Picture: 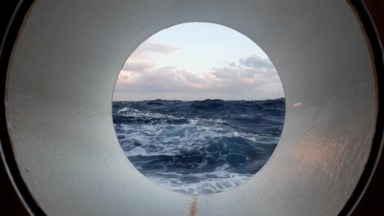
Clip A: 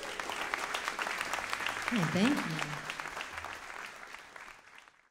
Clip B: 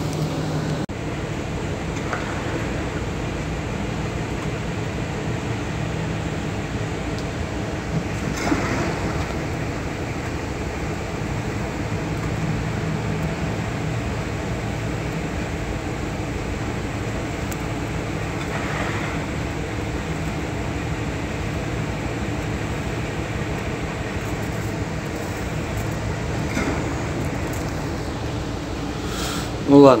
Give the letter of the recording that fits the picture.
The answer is B